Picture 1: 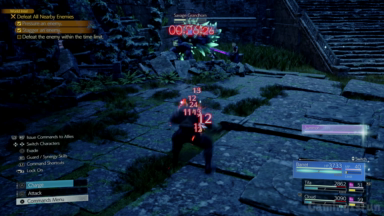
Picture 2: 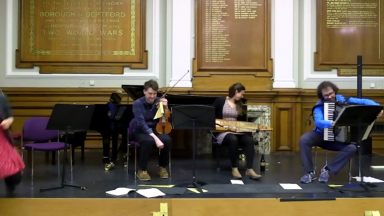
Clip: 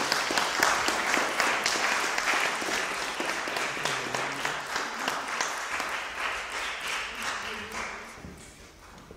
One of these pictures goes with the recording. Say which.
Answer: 2